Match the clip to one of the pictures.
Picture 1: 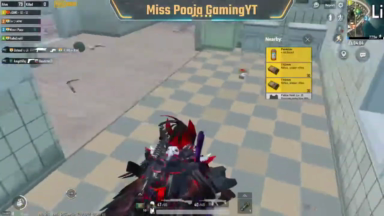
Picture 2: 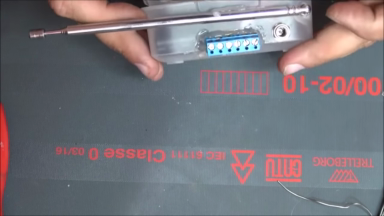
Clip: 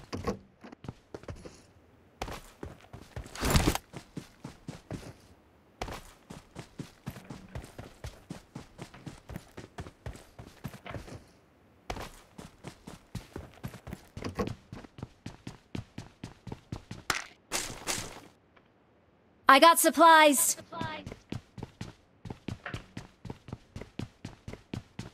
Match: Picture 1